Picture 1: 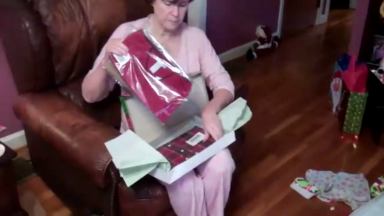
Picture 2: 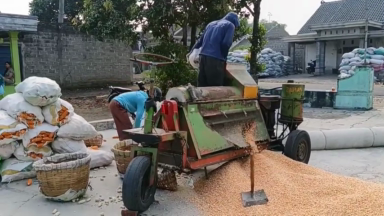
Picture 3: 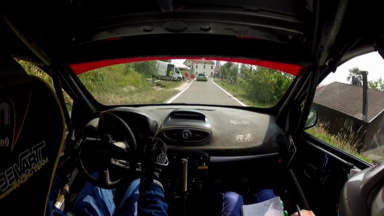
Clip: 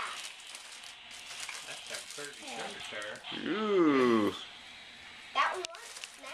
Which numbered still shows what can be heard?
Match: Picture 1